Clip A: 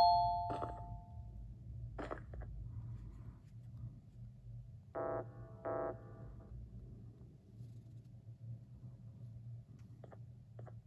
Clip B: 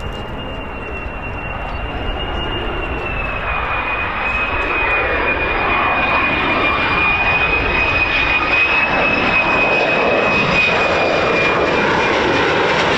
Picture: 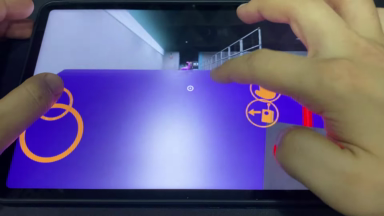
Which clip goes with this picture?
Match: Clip A